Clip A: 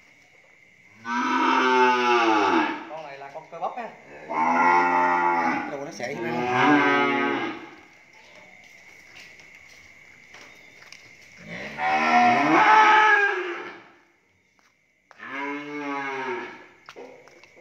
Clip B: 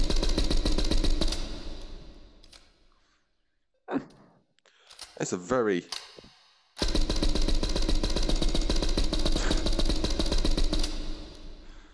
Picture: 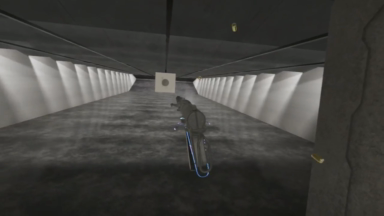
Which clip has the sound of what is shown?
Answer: B